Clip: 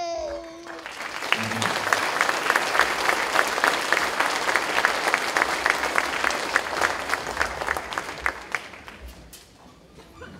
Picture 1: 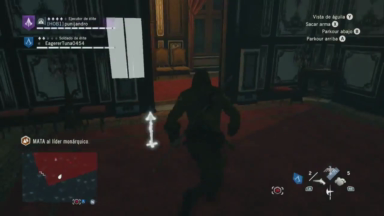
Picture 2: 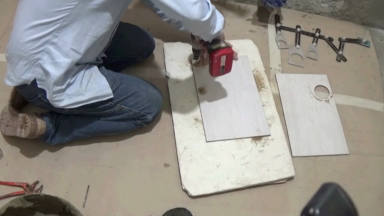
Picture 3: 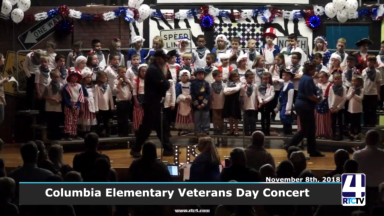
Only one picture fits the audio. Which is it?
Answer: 3